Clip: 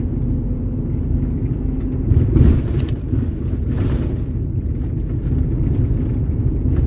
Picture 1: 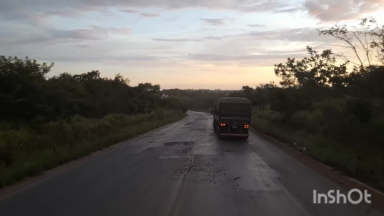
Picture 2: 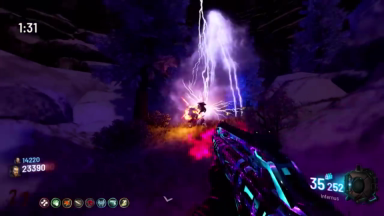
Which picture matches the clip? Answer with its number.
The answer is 1